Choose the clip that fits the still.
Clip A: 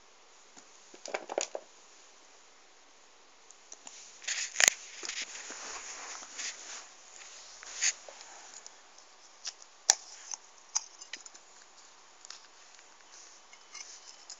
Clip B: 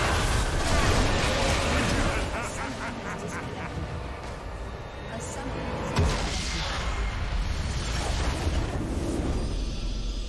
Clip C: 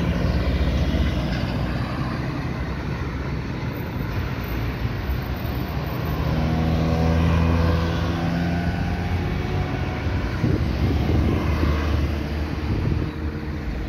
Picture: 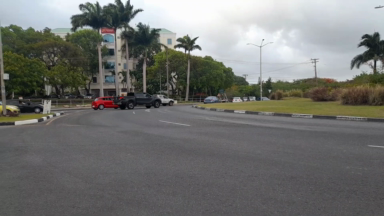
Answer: C